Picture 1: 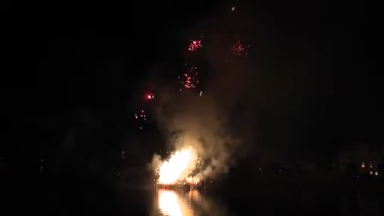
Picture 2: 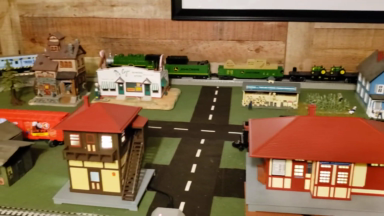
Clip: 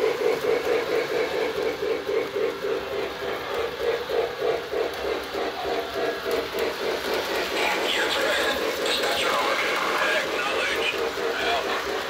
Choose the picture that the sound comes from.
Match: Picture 2